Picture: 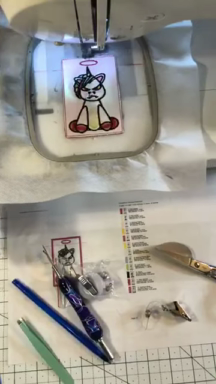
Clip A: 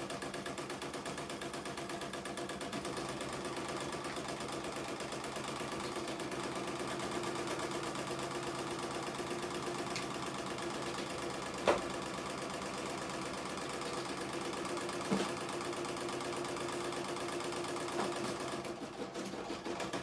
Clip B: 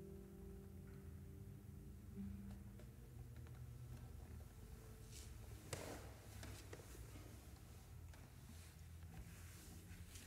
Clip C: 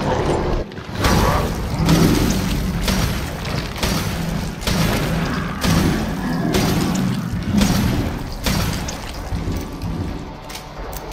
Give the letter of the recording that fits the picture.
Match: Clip A